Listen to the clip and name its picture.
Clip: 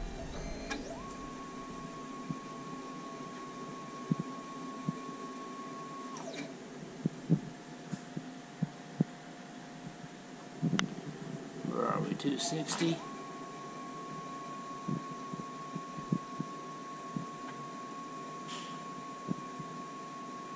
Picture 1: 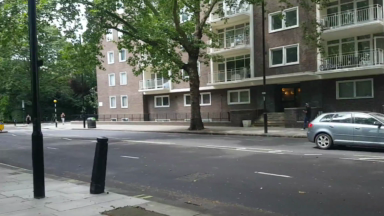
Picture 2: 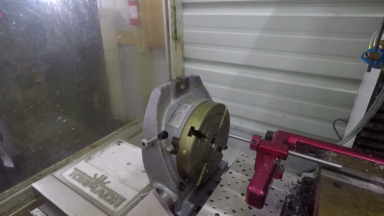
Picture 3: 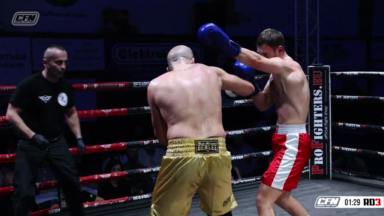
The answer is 2